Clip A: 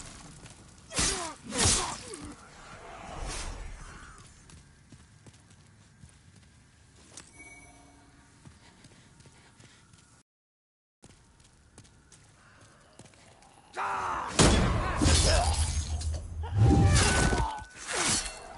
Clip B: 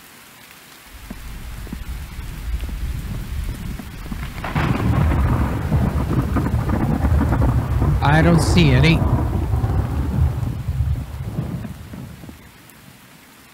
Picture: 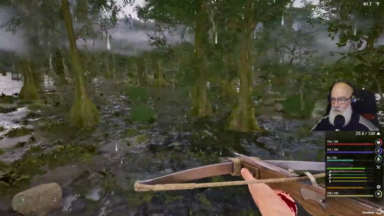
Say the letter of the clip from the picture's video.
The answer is B